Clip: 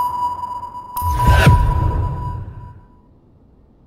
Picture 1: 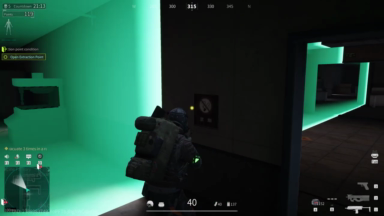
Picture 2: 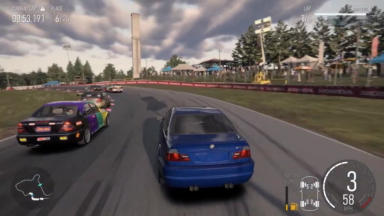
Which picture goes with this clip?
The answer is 1